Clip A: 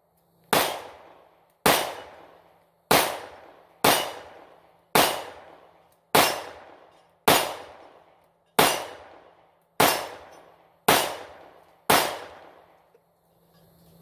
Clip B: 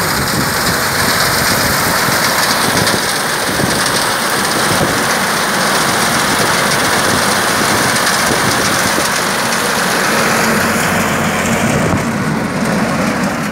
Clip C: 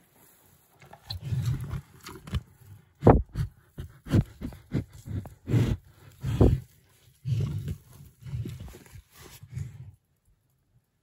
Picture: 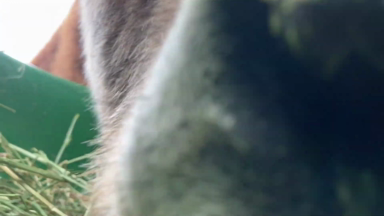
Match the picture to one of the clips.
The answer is C